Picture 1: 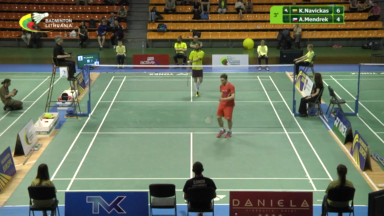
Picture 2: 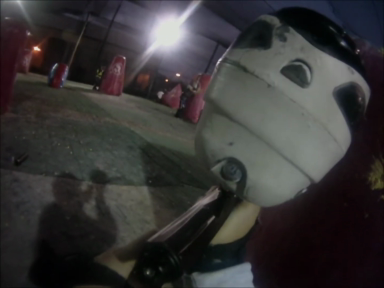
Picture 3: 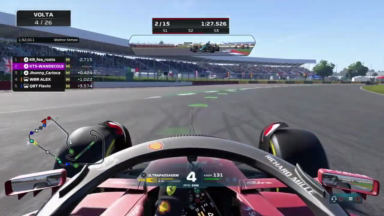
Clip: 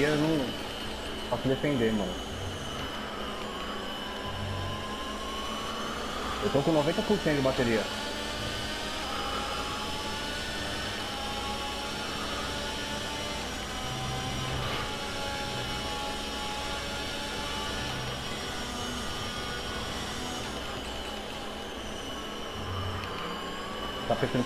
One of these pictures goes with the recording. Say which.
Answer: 3